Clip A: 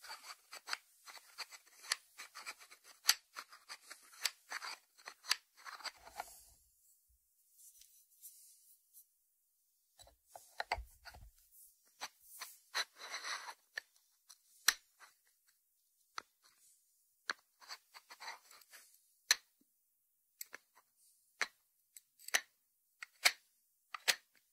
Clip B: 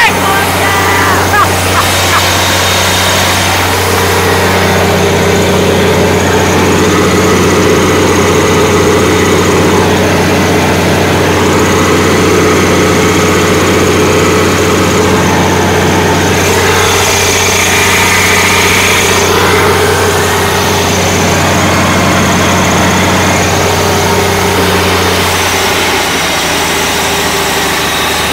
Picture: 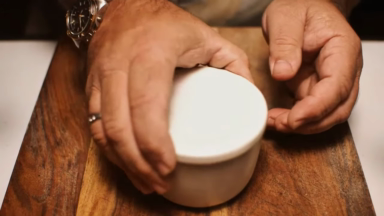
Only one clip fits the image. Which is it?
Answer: A